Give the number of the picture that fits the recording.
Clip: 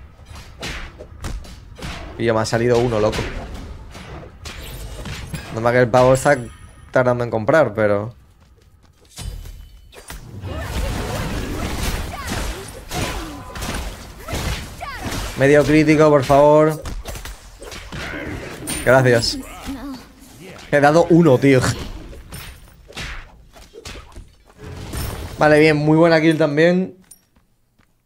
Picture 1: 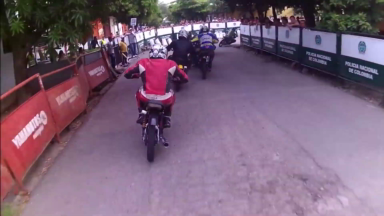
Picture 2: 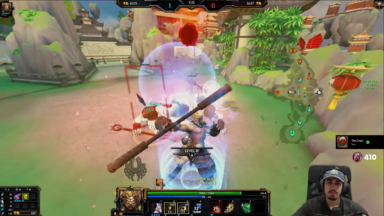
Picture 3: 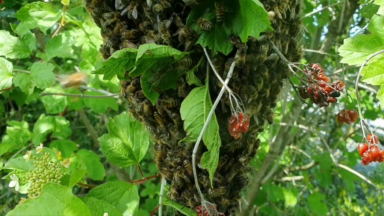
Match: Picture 2